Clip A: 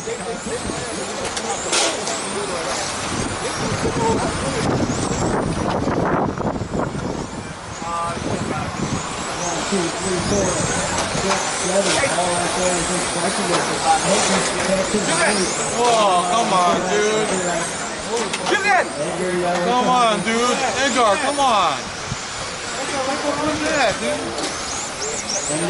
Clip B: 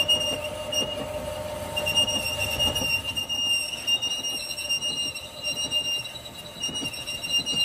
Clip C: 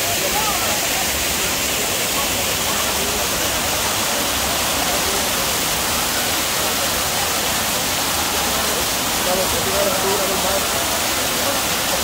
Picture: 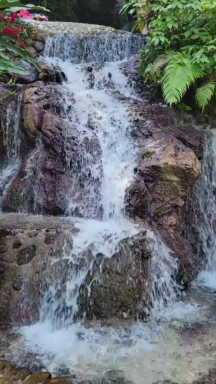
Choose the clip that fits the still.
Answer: C